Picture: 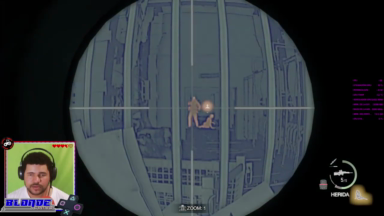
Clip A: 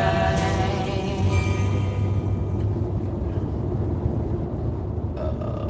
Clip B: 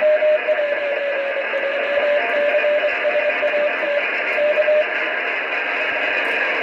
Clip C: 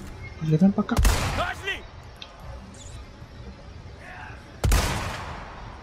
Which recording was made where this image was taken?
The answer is C